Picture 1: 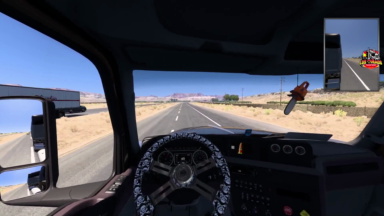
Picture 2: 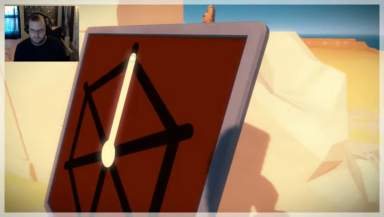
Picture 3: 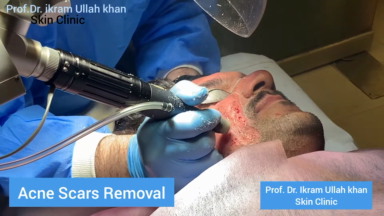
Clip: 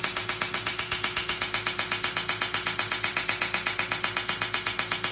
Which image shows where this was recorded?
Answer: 3